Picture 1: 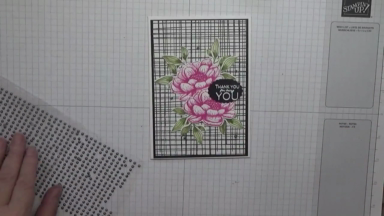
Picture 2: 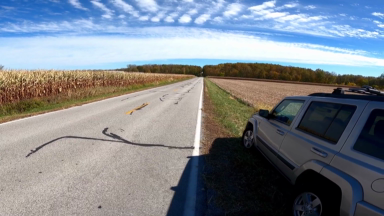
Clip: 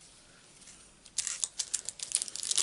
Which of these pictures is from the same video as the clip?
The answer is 1